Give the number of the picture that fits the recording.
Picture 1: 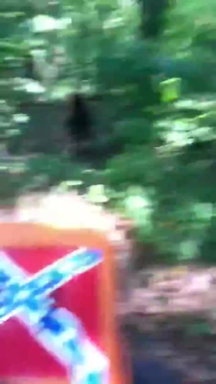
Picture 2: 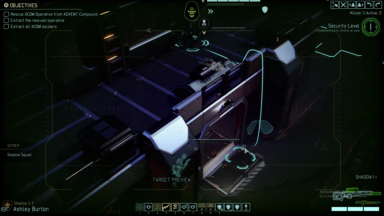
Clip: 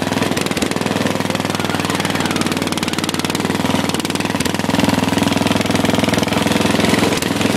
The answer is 1